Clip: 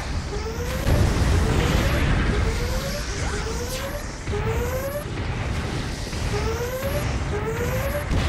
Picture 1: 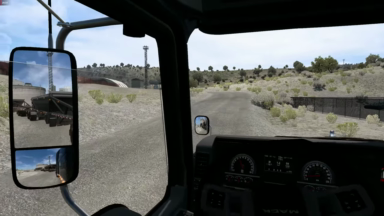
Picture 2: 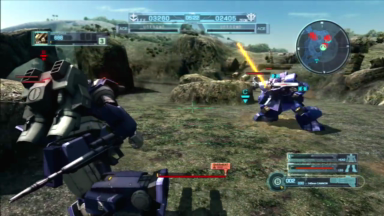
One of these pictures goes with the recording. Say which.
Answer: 2